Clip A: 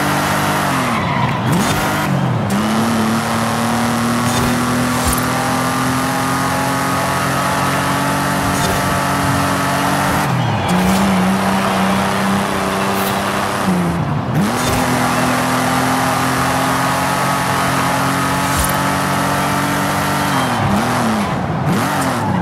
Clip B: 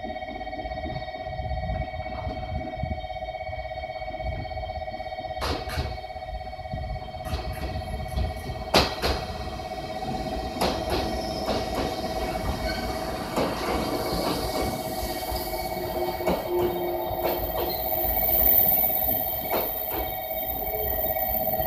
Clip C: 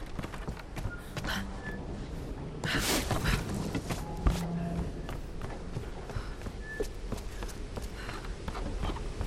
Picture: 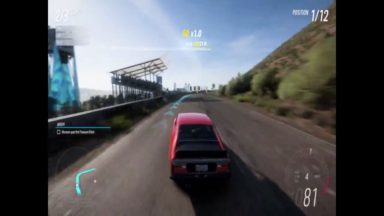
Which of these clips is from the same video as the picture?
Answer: A